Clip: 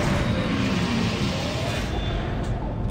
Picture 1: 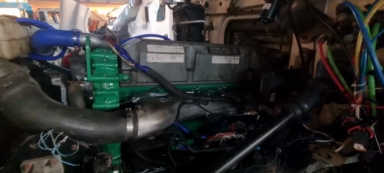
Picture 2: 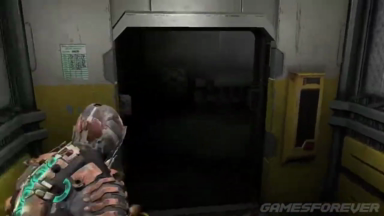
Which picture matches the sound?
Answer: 2